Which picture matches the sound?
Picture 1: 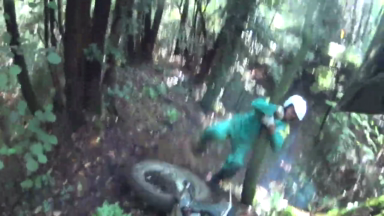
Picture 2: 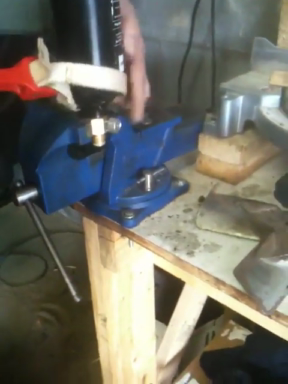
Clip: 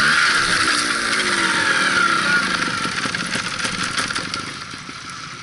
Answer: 1